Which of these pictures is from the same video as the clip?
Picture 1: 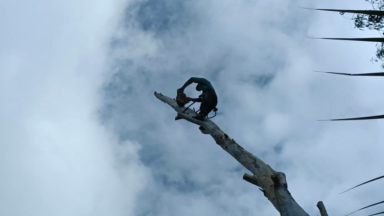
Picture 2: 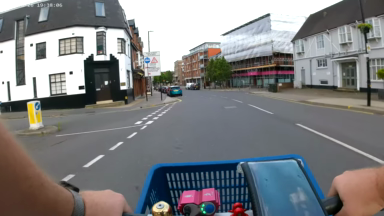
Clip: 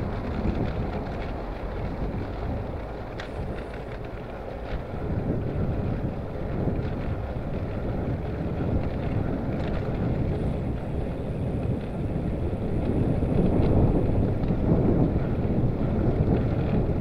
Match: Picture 2